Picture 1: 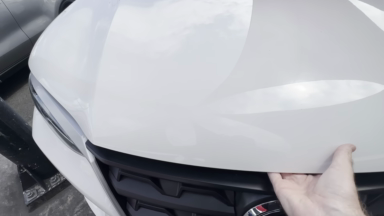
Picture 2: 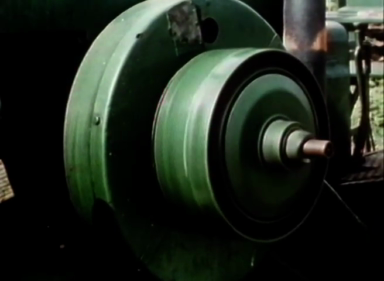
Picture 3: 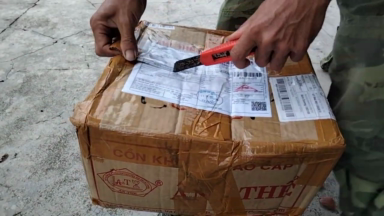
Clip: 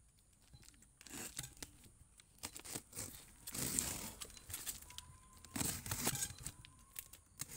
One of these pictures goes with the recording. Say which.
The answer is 3